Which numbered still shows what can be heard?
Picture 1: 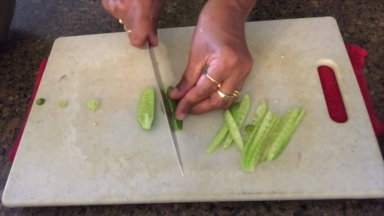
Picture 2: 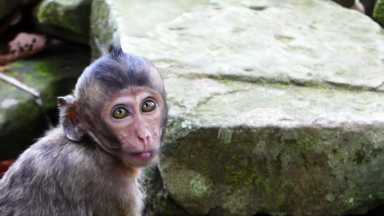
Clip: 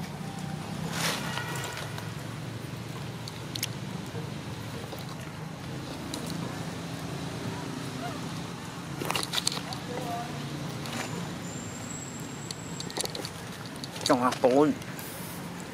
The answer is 2